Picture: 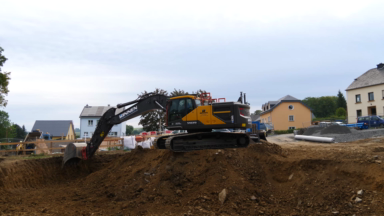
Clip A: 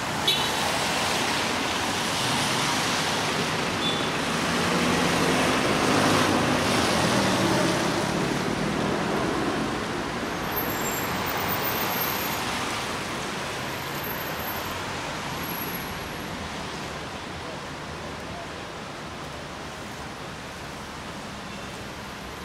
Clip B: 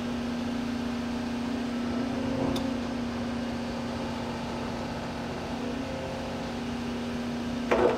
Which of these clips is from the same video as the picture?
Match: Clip B